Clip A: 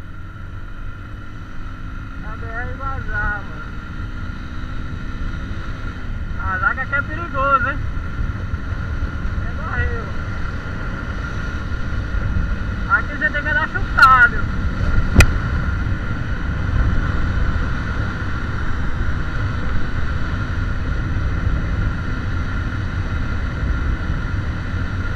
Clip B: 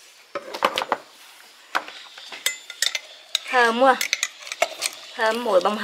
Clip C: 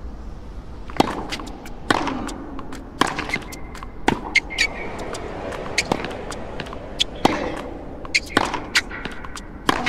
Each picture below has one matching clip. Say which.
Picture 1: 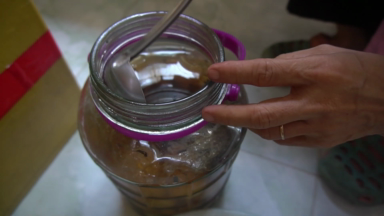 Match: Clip B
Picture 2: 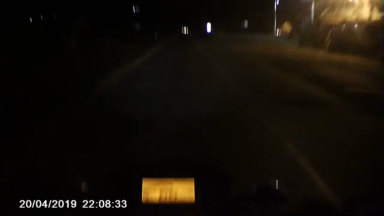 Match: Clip A